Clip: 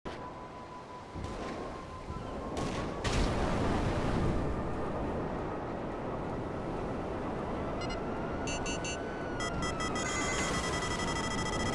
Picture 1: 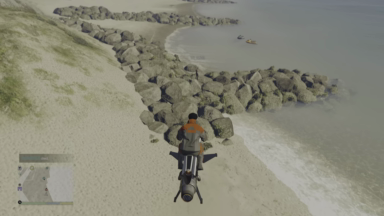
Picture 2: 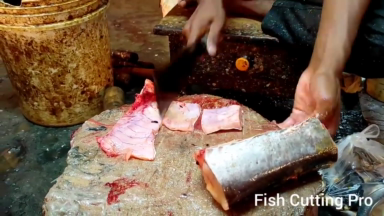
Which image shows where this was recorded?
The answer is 1